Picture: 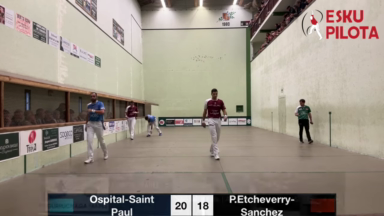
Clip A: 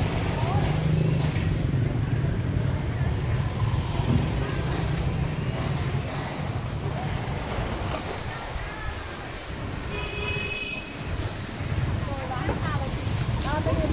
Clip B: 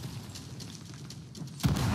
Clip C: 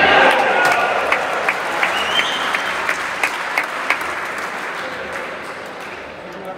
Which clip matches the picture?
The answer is C